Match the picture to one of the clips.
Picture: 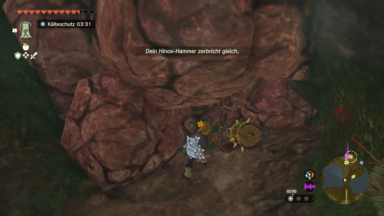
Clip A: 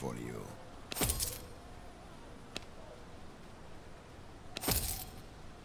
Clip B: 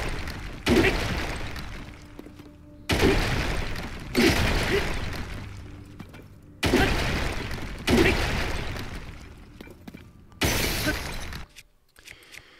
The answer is B